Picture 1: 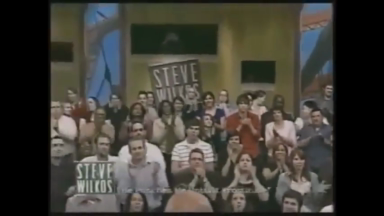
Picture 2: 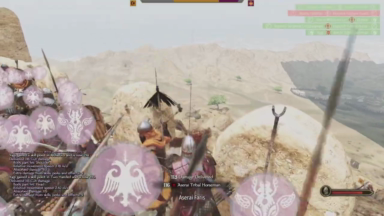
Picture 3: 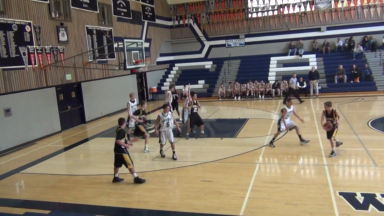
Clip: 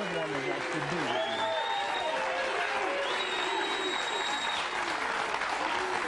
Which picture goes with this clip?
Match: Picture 1